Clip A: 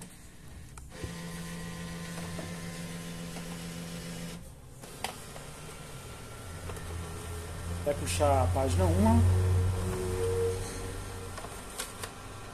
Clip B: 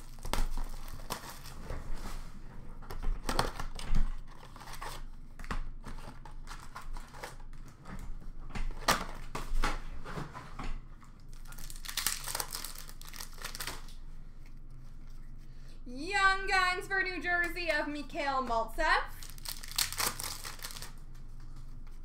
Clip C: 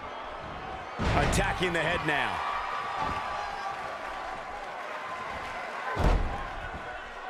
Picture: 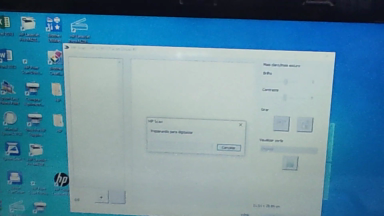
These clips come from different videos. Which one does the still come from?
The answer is A